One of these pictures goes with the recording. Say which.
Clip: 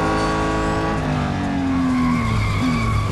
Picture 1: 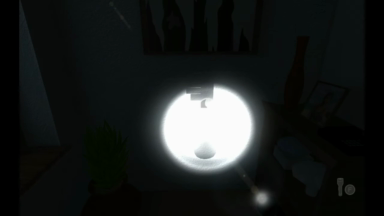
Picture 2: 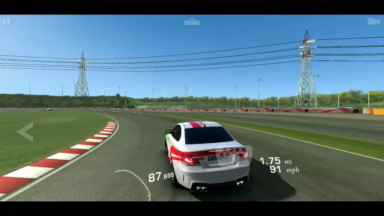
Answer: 2